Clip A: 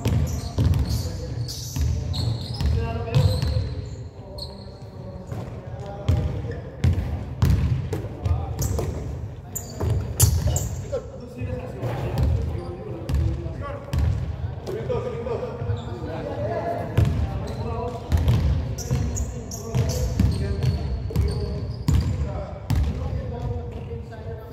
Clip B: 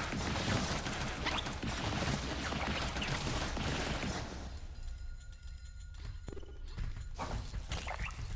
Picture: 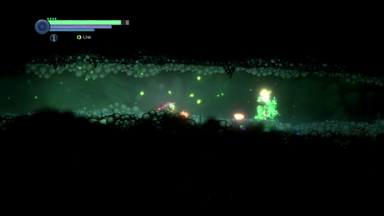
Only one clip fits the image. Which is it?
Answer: B